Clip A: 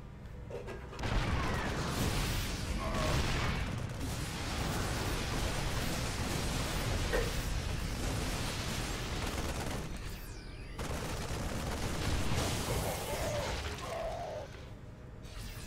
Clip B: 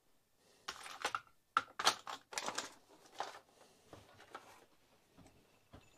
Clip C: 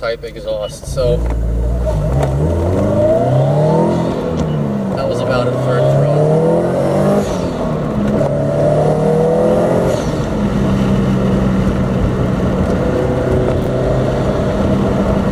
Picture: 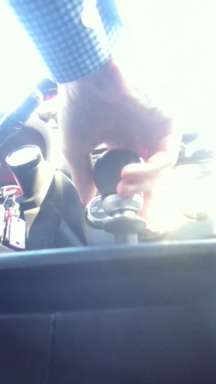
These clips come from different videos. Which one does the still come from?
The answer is C